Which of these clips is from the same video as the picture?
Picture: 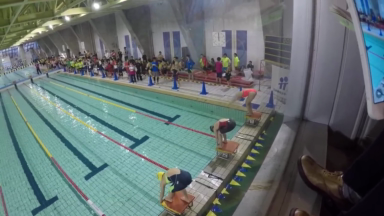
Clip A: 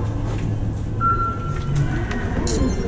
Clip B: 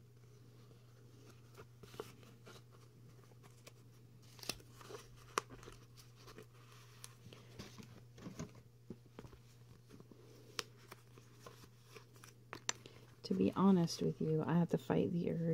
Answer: A